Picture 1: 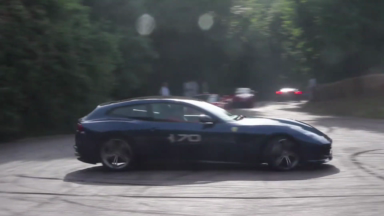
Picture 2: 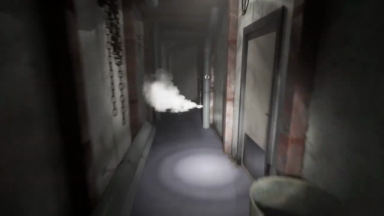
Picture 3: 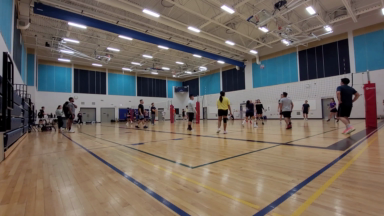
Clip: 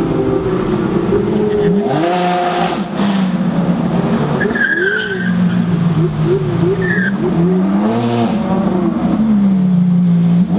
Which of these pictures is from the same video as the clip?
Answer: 1